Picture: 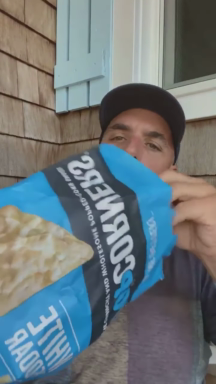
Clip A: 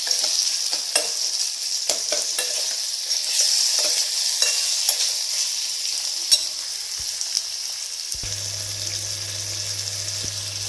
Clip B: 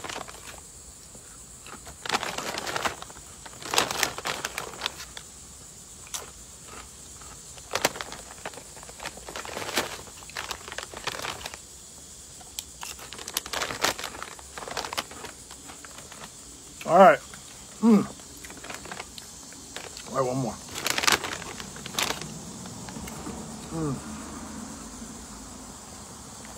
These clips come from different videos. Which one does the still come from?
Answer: B